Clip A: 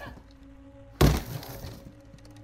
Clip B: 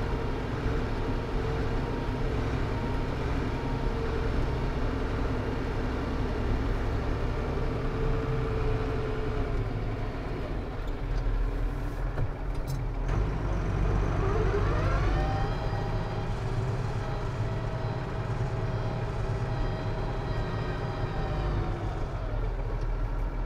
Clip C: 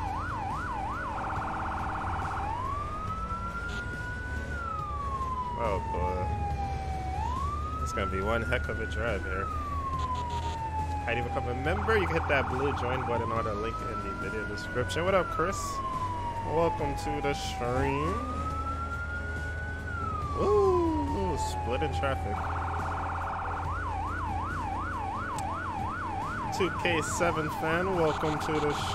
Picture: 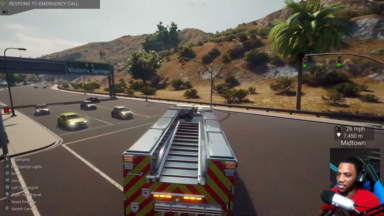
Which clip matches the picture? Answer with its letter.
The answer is C